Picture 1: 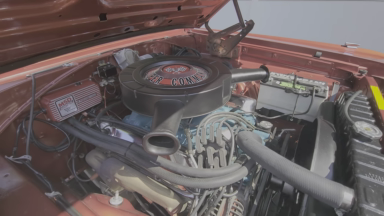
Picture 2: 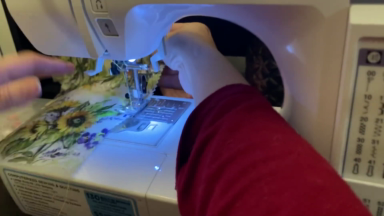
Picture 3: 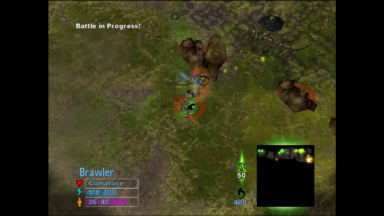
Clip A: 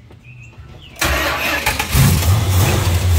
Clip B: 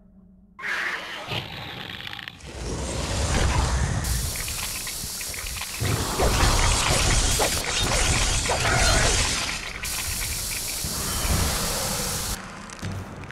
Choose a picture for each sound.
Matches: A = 1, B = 3